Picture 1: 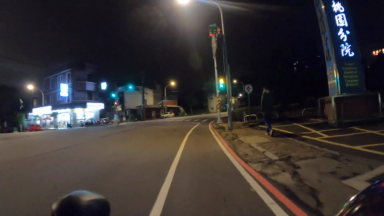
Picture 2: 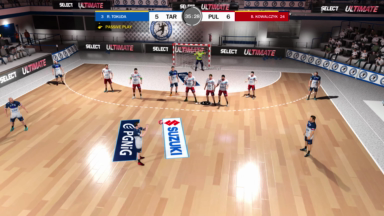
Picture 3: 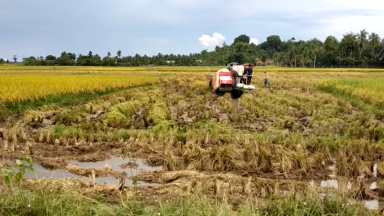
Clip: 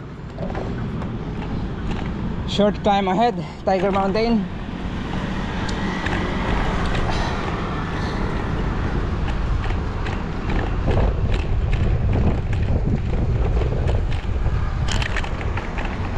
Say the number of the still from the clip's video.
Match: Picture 1